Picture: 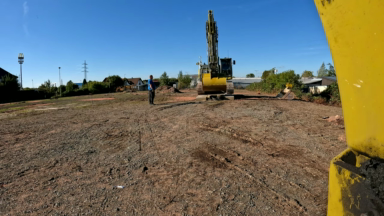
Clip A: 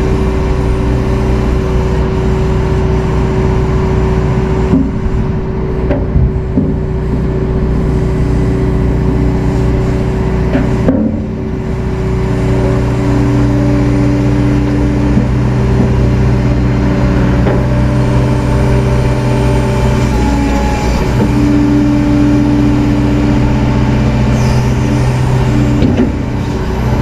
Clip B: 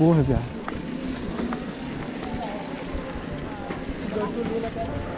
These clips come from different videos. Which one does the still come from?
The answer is A